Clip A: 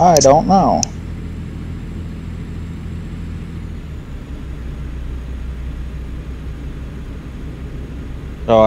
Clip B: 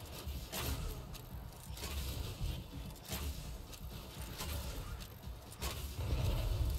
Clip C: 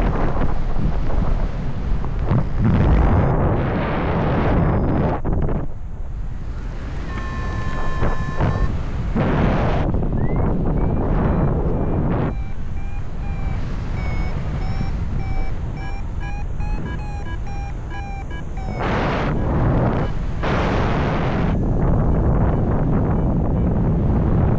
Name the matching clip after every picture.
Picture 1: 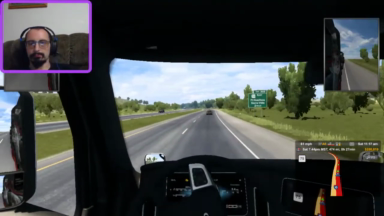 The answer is A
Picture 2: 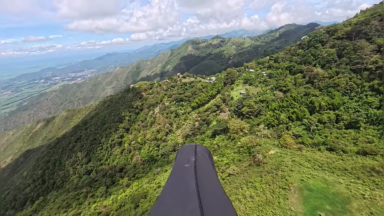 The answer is C